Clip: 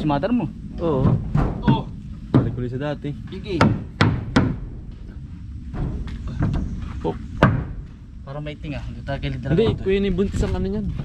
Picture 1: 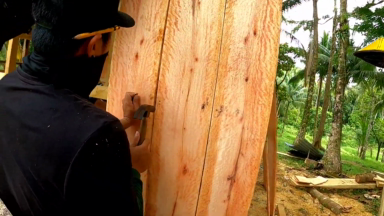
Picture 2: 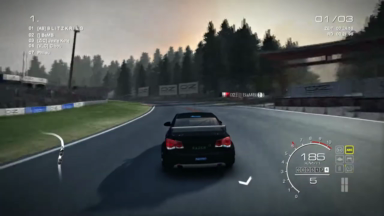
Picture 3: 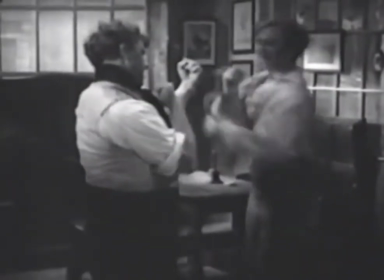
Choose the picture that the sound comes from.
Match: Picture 1